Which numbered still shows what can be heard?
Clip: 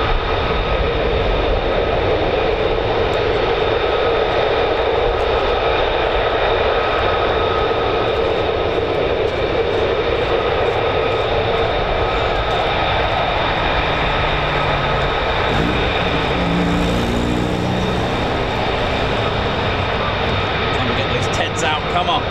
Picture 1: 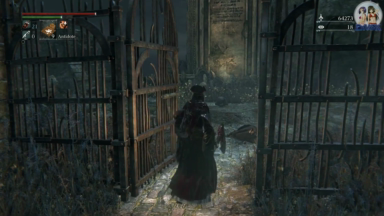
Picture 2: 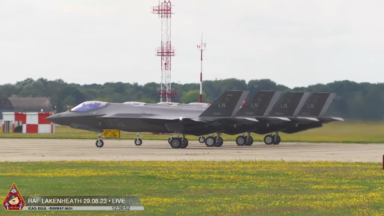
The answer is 2